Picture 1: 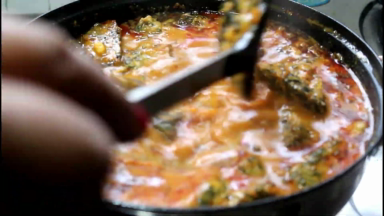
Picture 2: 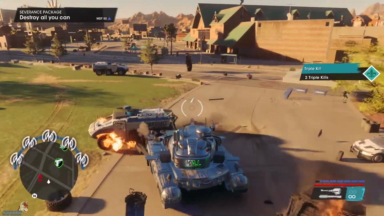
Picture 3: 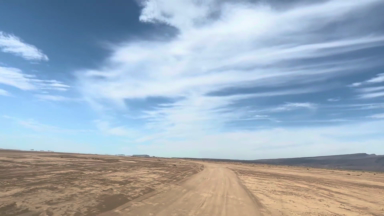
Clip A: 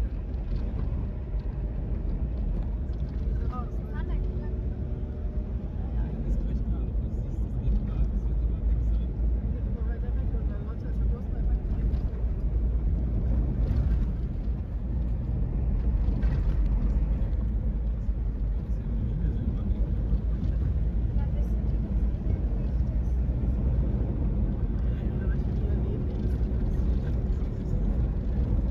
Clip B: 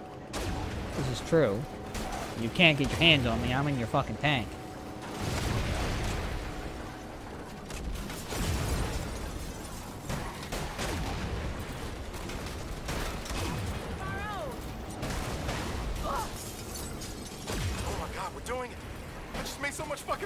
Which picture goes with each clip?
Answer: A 3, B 2